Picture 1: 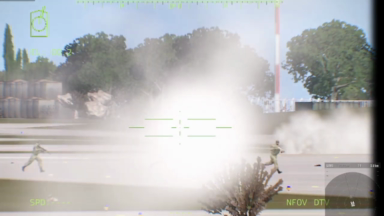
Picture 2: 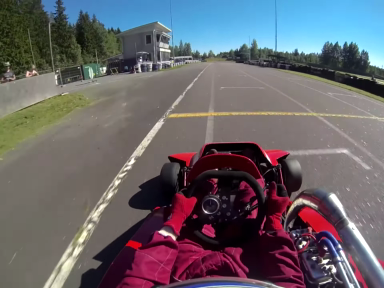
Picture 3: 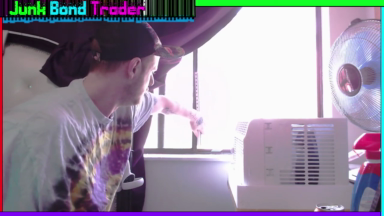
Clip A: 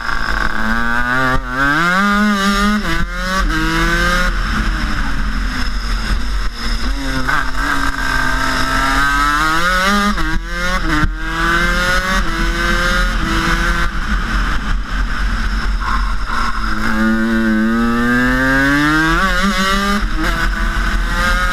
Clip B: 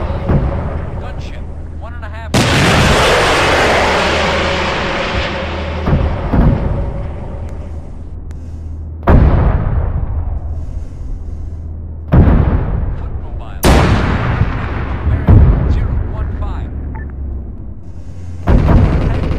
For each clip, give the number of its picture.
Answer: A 2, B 1